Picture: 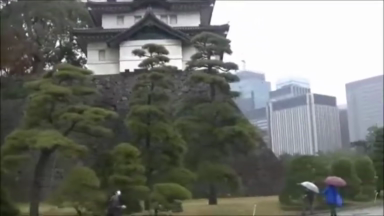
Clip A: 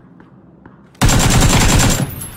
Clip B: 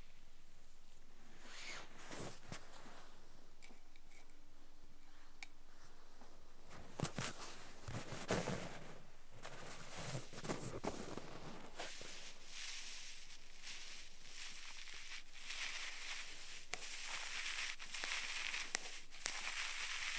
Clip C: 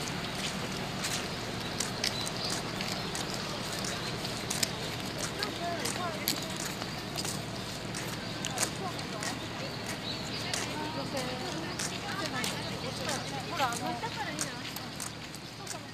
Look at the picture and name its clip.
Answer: C